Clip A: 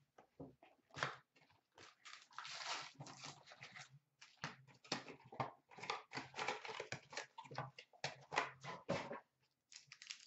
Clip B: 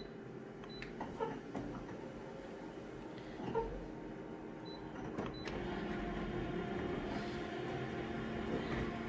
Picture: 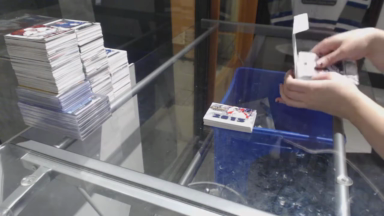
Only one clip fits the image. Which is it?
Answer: A